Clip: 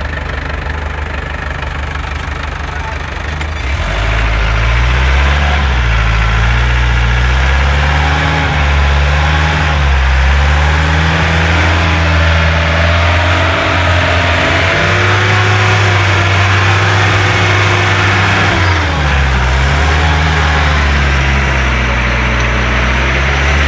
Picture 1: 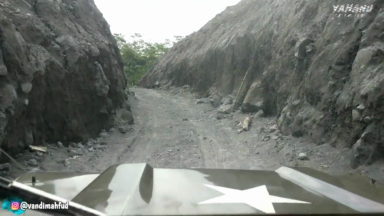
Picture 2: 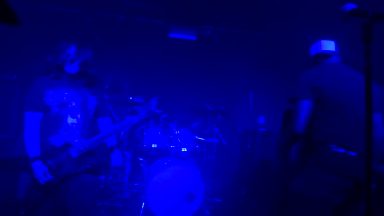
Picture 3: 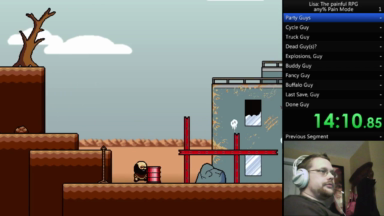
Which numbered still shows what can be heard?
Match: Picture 1